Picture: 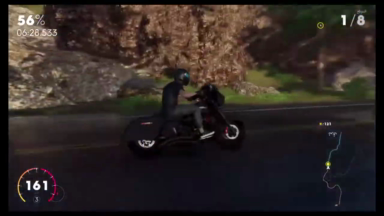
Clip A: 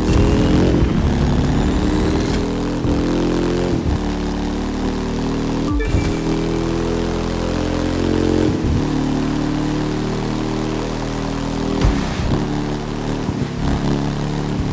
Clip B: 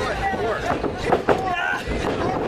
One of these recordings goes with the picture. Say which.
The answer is A